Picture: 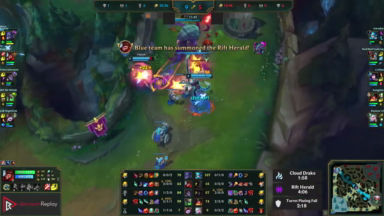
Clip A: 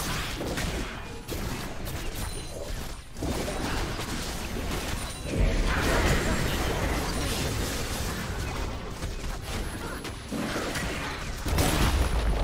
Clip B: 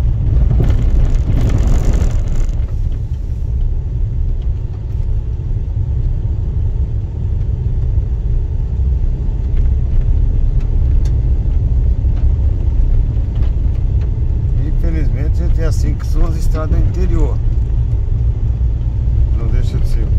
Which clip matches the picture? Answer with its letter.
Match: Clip A